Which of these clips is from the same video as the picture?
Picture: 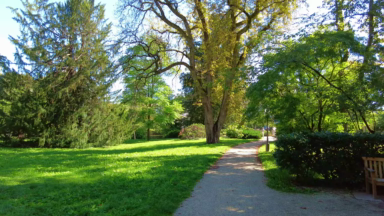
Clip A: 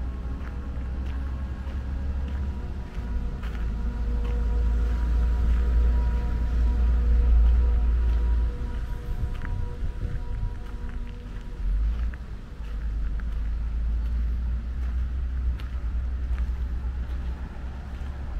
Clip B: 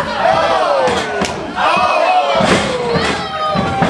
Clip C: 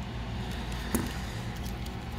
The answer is A